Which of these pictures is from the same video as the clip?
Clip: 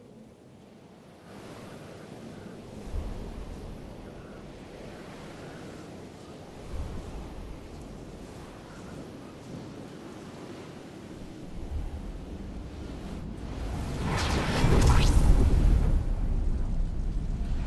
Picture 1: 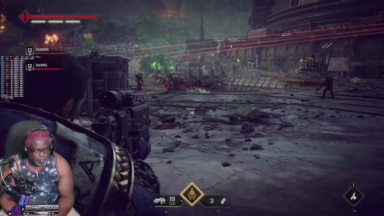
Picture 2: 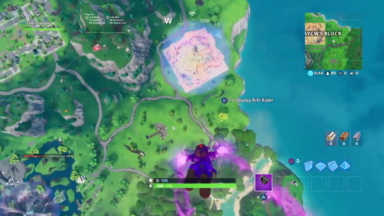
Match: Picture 2